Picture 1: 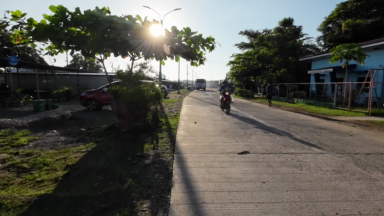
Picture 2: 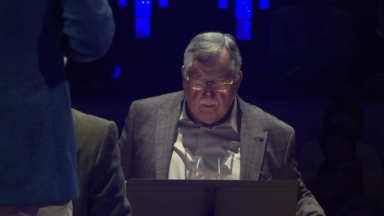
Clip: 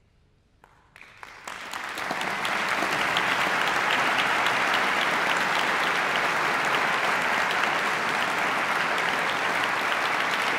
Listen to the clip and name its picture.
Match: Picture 2